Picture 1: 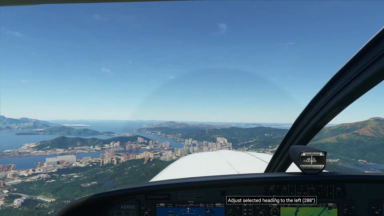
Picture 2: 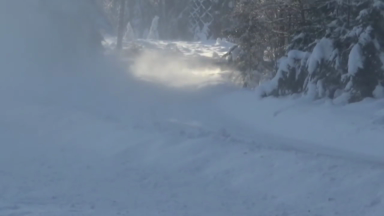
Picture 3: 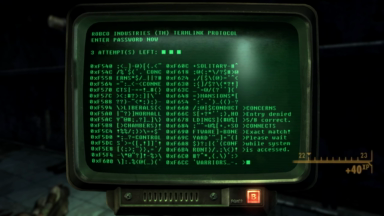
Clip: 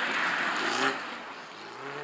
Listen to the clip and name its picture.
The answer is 2